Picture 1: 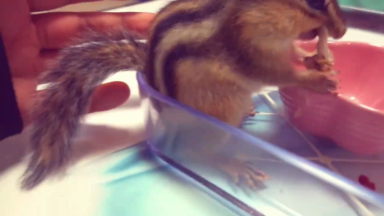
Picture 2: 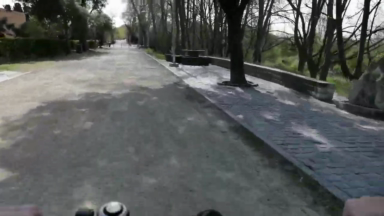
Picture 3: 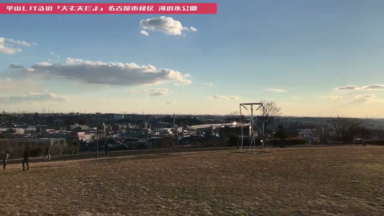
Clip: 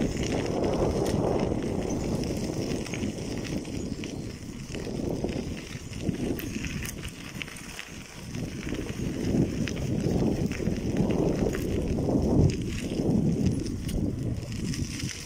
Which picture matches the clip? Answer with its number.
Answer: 2